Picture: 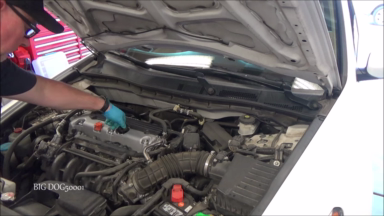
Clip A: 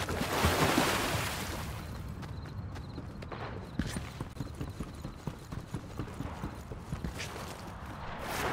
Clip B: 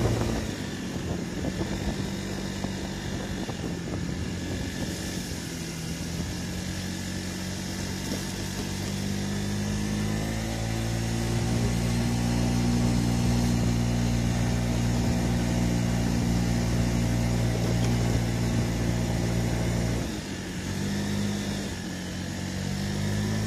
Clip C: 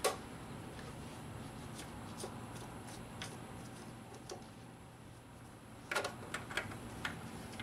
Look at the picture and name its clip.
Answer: C